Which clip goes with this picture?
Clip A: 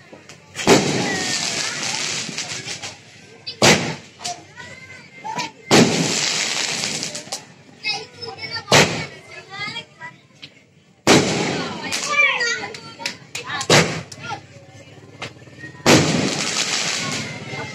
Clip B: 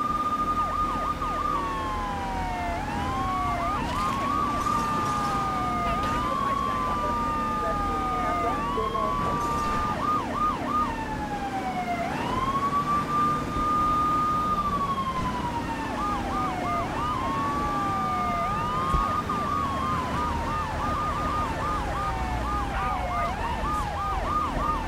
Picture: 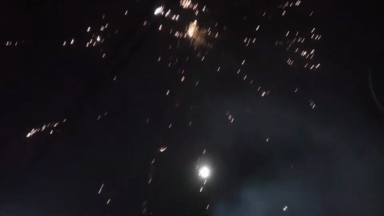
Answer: A